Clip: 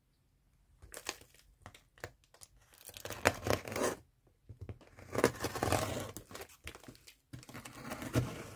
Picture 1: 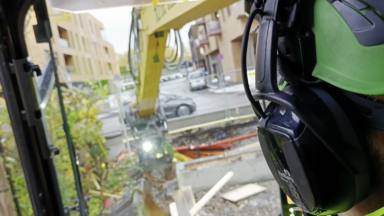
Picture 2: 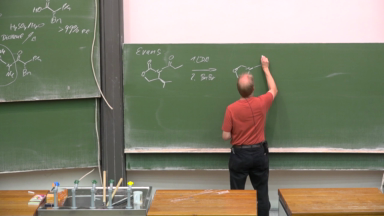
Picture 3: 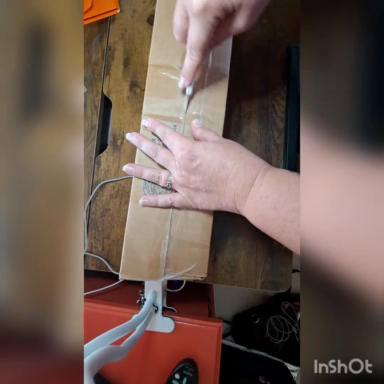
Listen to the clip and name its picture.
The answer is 3